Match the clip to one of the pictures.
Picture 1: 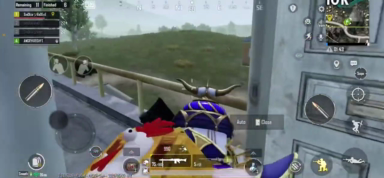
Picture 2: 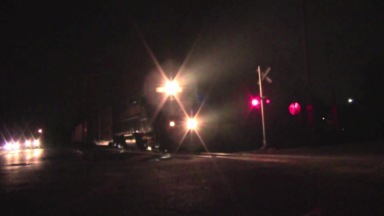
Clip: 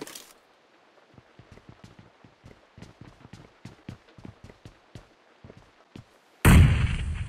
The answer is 1